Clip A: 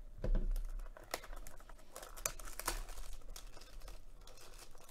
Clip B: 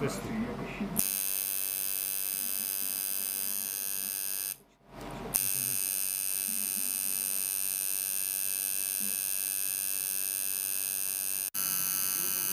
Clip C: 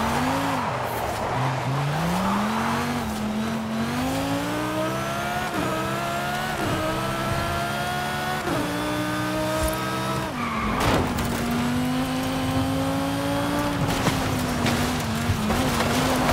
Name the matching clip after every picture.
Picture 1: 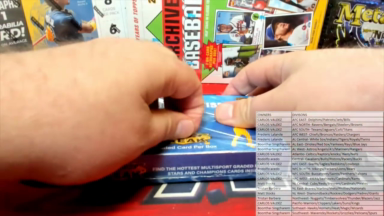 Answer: A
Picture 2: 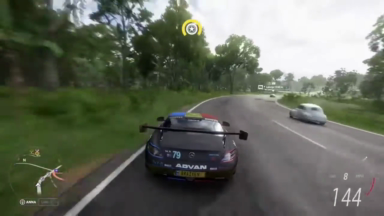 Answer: C